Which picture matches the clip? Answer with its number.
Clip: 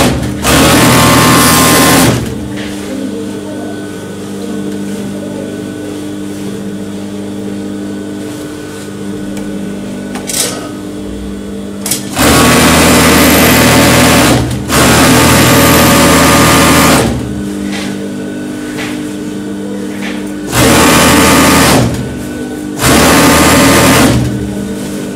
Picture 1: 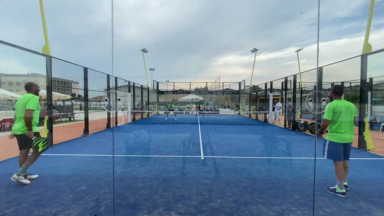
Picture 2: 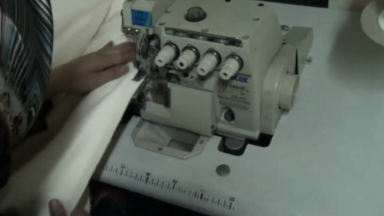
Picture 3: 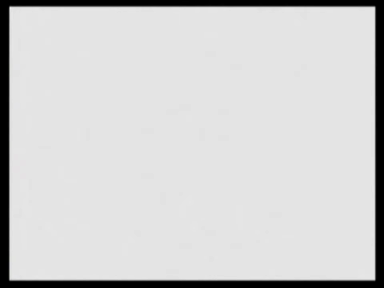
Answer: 2